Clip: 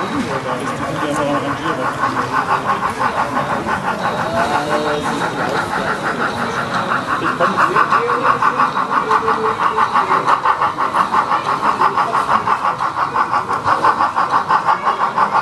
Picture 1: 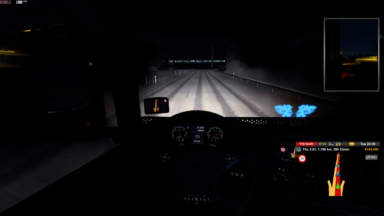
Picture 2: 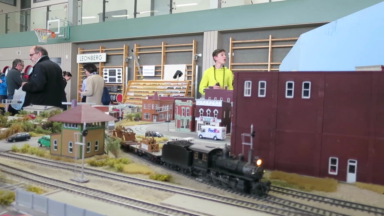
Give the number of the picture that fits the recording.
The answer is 2